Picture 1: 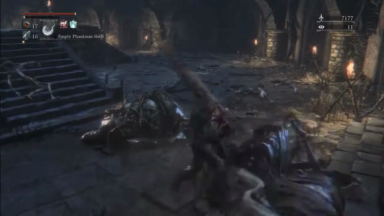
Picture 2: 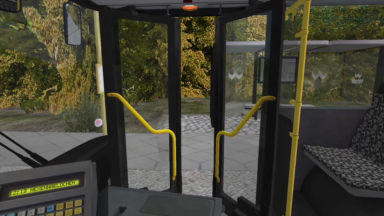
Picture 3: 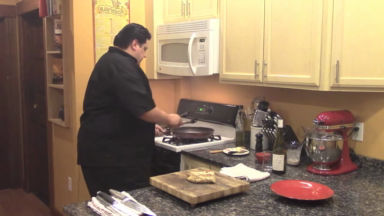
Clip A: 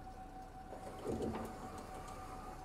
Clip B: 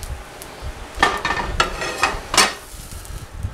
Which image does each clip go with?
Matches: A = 2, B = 3